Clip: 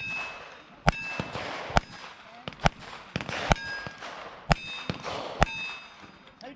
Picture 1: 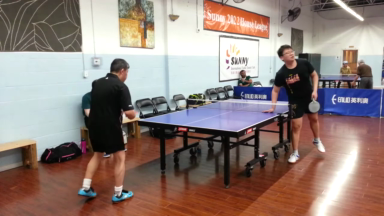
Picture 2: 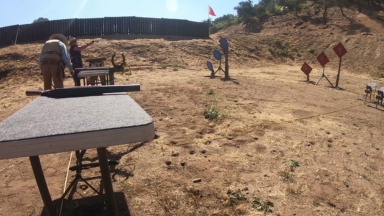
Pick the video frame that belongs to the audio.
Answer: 2